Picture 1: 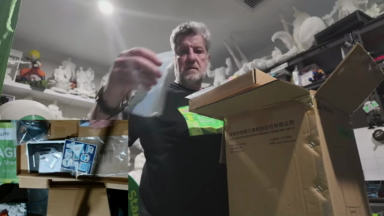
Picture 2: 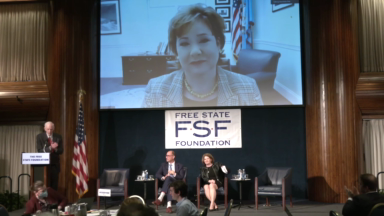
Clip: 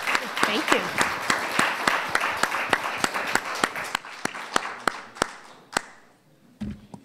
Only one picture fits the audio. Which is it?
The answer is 2